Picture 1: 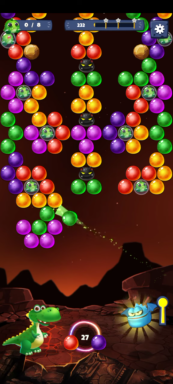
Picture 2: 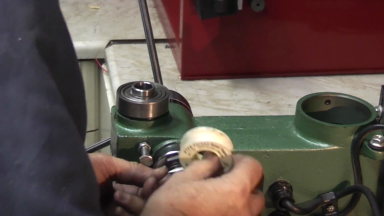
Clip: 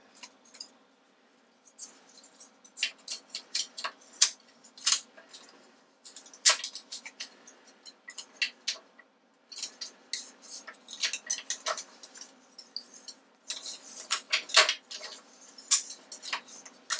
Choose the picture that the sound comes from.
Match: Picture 2